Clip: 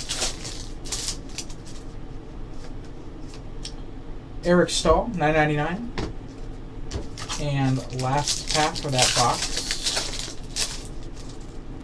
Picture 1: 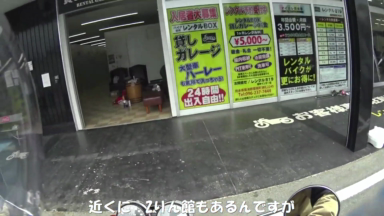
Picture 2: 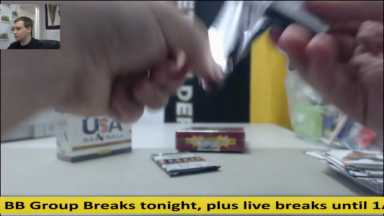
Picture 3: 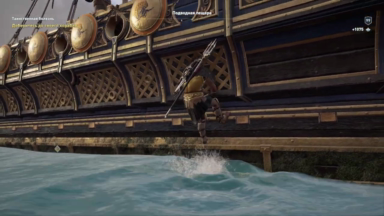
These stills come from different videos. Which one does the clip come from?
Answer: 2